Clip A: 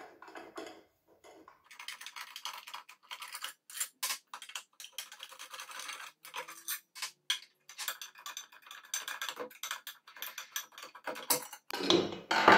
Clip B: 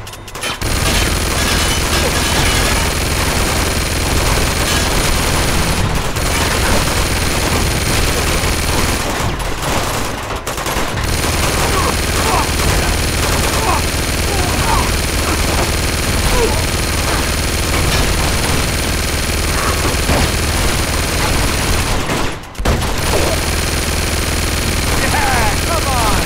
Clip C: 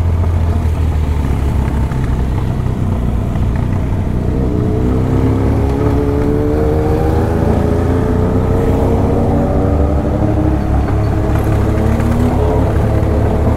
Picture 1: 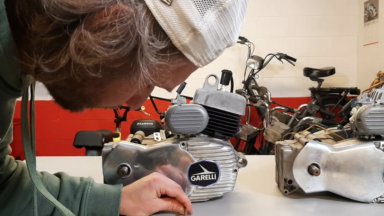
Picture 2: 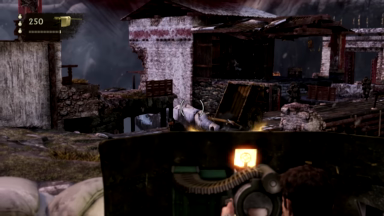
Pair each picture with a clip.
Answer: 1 A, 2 B